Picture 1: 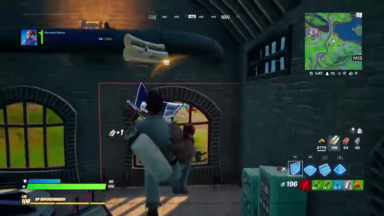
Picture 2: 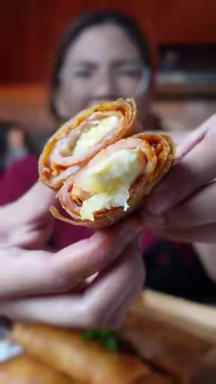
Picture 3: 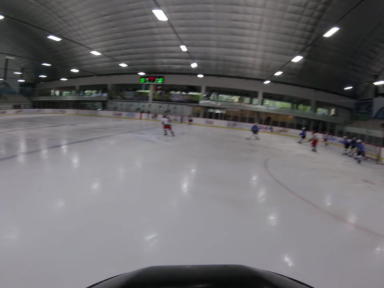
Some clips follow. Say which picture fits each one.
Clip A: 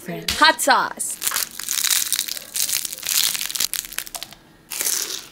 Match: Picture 2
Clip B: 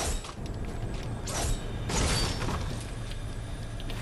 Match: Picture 1